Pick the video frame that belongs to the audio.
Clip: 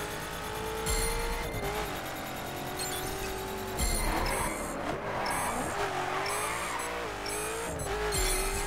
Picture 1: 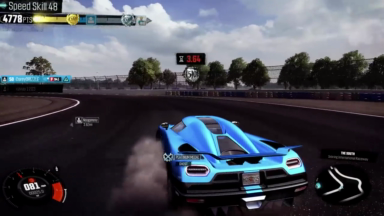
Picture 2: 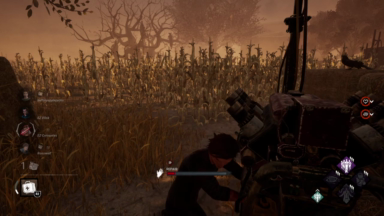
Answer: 1